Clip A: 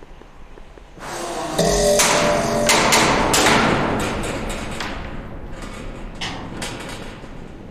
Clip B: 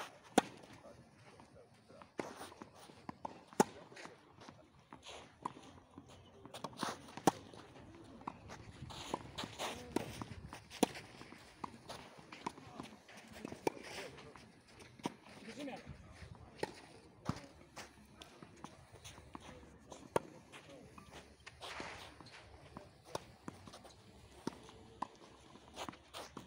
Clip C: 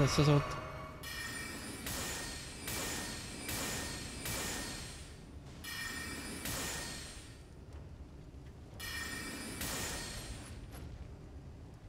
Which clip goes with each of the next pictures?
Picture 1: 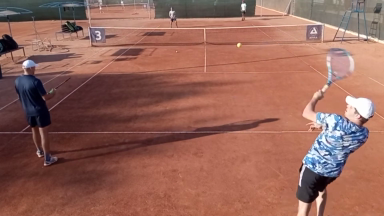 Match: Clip B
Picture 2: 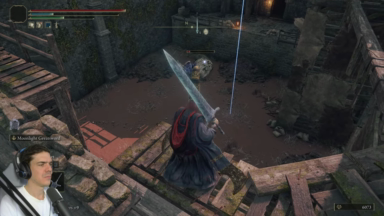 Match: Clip C